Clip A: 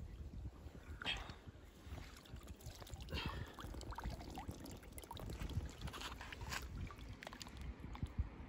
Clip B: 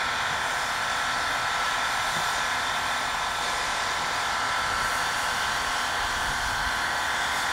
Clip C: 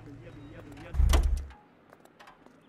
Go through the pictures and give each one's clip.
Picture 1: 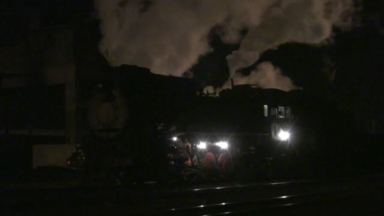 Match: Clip B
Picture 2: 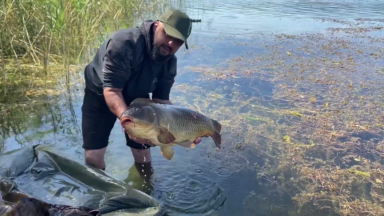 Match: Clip A